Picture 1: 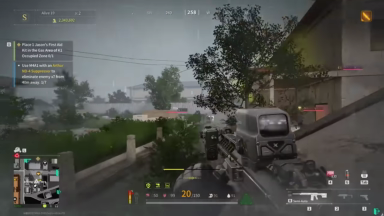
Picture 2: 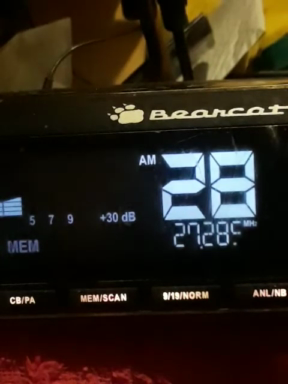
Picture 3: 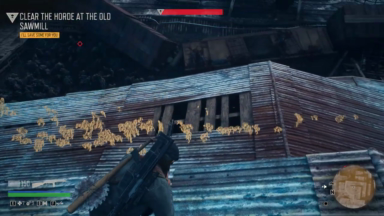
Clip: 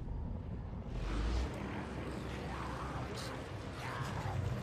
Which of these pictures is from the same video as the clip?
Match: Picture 3